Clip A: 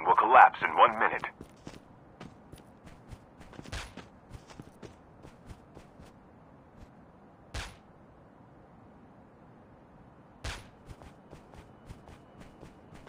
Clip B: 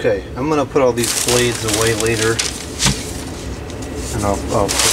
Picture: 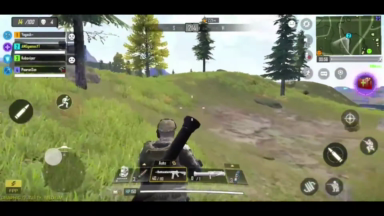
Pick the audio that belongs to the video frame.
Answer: A